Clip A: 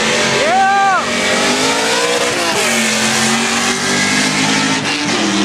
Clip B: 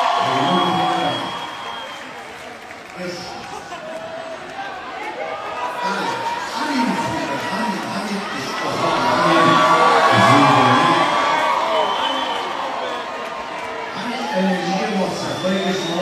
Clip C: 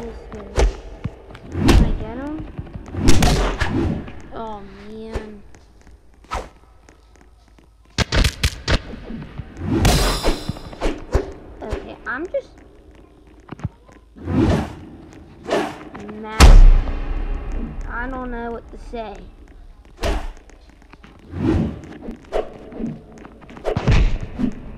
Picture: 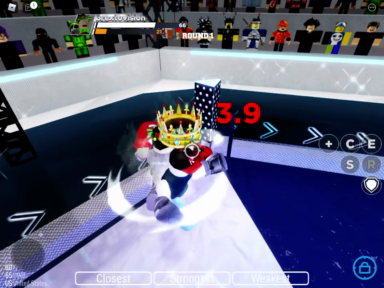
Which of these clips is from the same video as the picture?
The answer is C